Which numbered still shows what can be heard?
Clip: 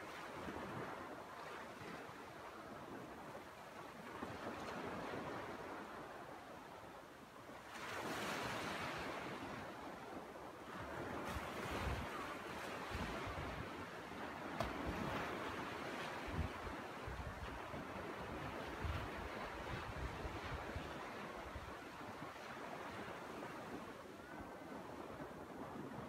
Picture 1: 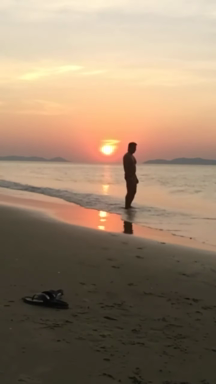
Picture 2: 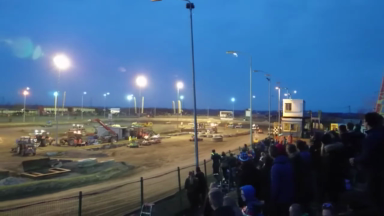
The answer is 1